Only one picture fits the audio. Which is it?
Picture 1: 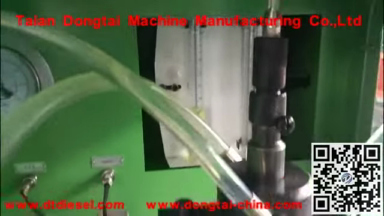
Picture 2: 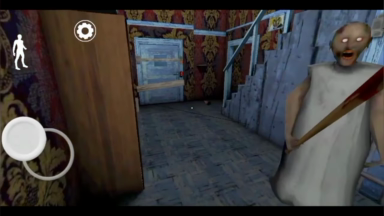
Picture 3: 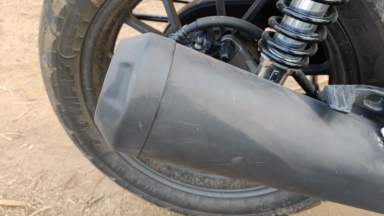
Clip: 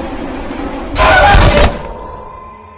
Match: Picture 2